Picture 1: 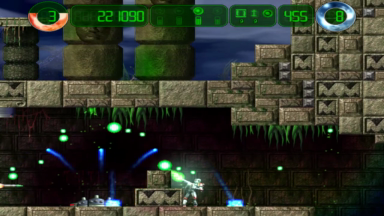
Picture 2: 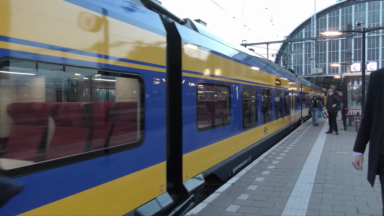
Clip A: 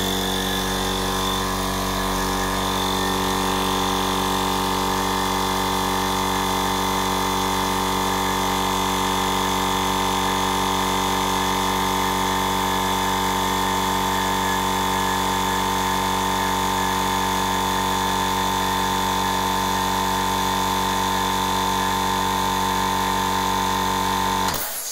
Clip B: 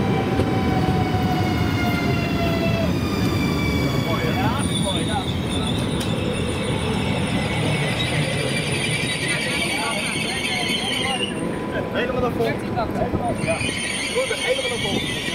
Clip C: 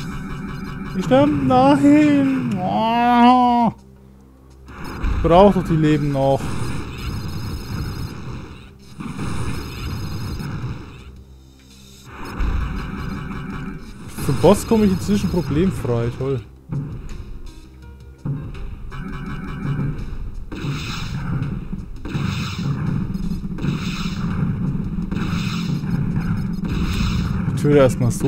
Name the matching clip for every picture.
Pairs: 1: C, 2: B